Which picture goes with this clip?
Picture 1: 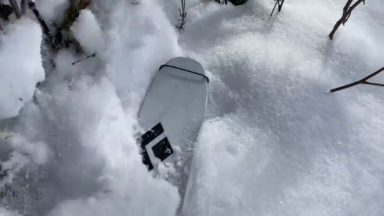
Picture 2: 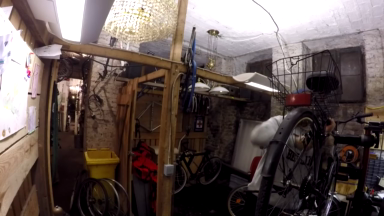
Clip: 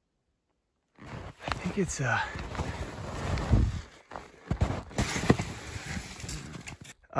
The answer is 1